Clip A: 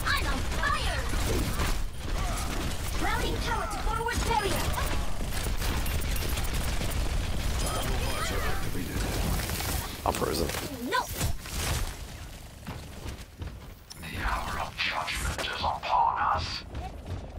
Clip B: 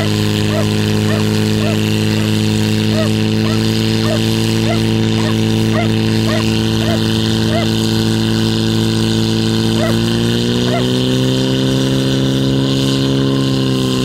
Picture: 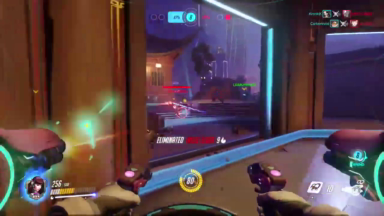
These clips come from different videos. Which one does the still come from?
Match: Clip A